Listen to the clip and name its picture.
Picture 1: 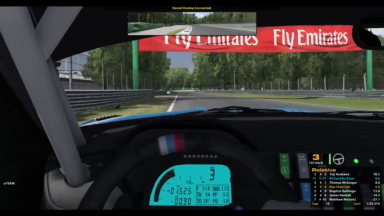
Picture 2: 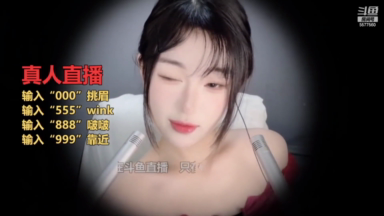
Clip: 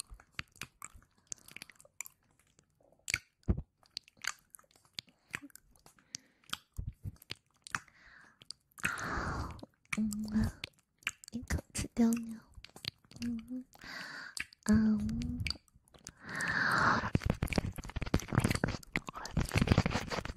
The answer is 2